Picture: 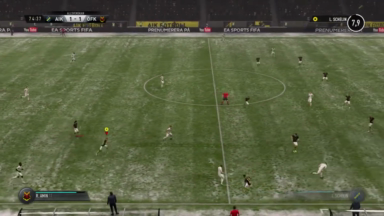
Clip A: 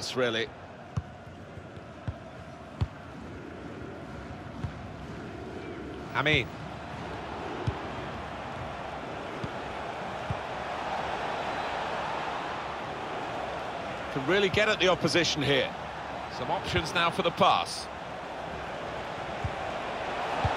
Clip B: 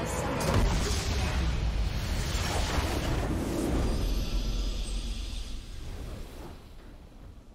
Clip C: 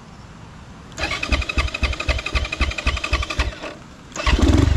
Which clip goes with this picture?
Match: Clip A